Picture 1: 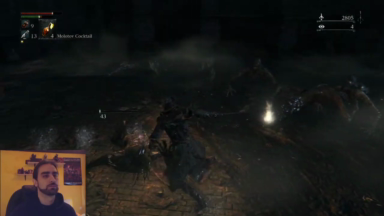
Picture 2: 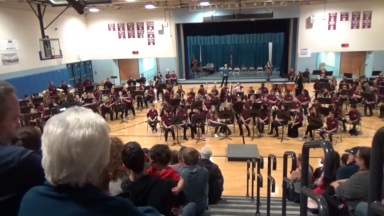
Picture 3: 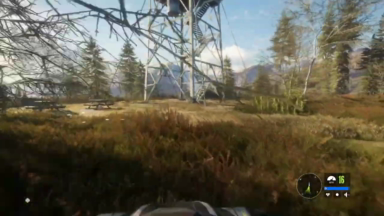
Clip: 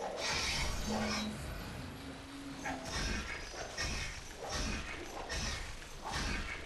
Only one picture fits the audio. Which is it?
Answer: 1